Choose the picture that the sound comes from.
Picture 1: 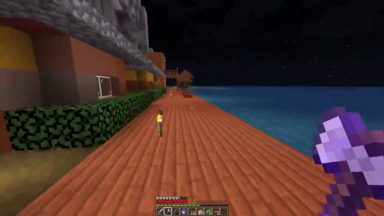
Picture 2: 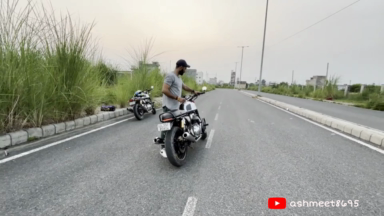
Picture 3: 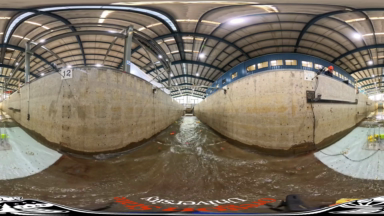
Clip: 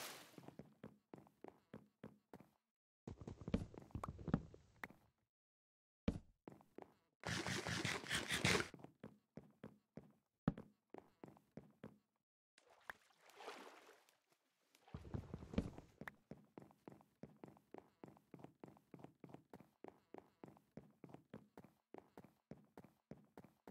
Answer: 1